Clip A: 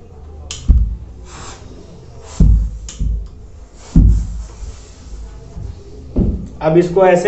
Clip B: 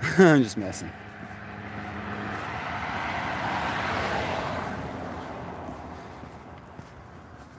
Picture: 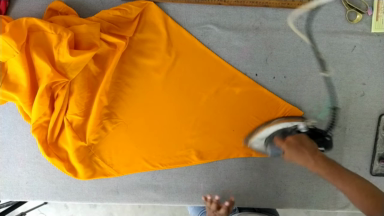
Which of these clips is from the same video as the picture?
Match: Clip A